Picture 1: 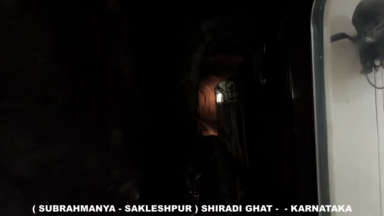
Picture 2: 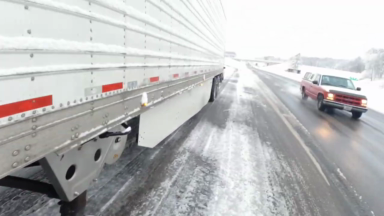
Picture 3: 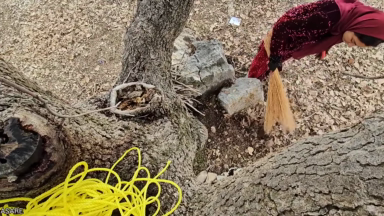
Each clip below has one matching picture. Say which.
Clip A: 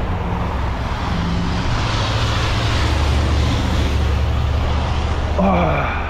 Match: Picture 2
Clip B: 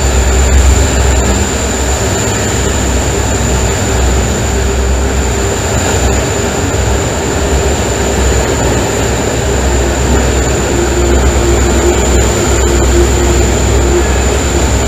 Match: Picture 1